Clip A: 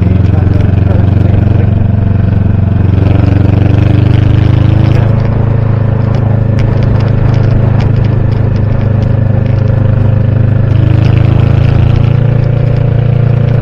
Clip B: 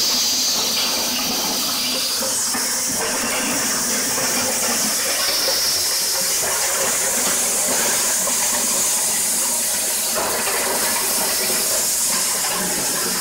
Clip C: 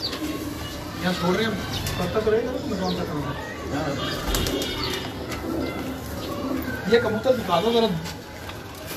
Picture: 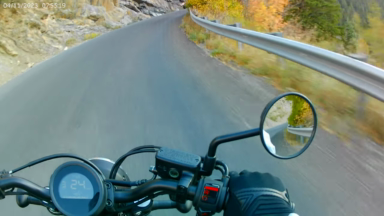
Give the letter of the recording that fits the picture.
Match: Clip A